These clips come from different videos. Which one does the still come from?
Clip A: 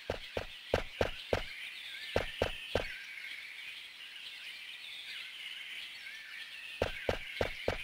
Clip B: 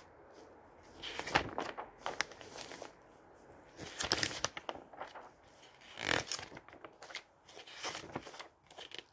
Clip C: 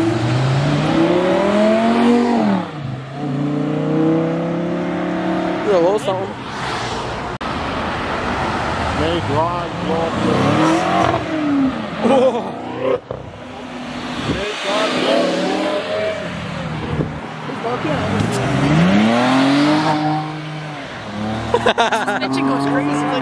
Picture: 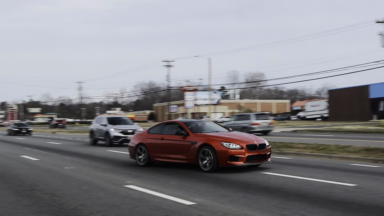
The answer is C